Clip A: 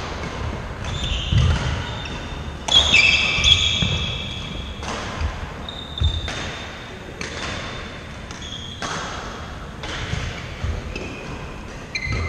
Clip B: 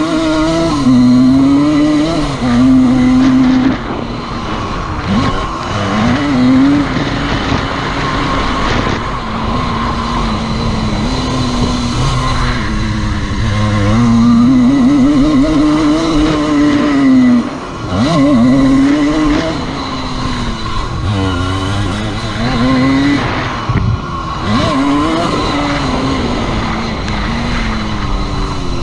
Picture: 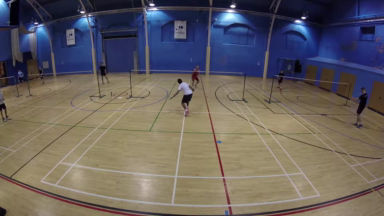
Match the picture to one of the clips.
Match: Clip A